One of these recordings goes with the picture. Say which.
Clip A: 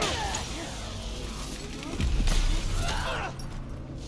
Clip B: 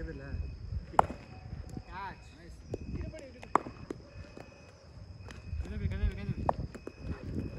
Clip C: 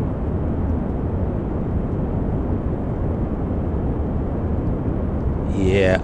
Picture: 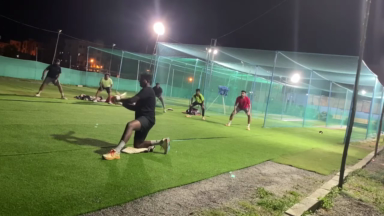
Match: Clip B